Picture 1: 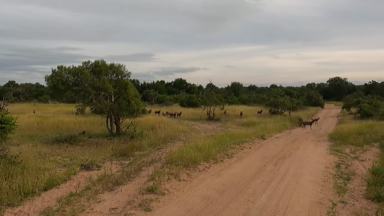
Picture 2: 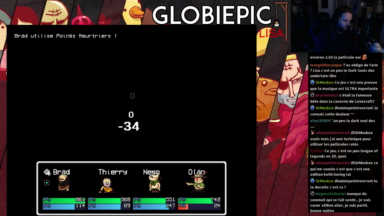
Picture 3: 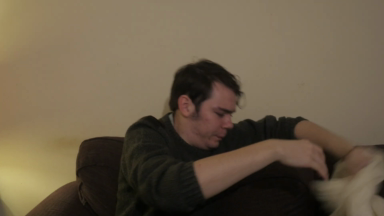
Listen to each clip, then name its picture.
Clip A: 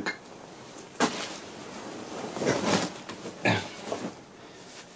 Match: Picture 3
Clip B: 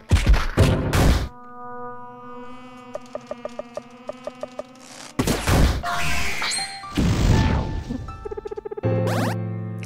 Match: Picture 2